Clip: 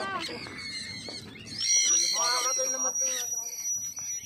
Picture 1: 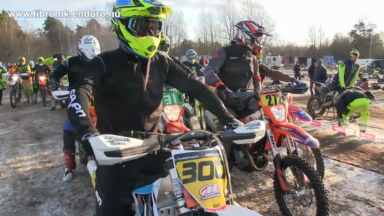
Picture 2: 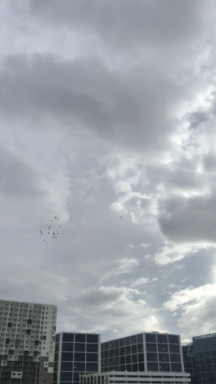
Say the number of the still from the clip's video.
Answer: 2